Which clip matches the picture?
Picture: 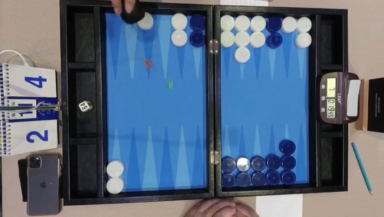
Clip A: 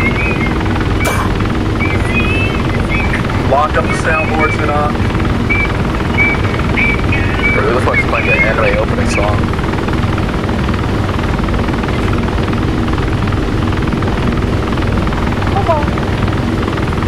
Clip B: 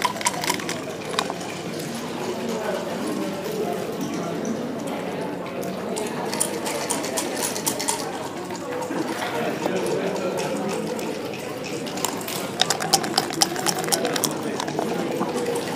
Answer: B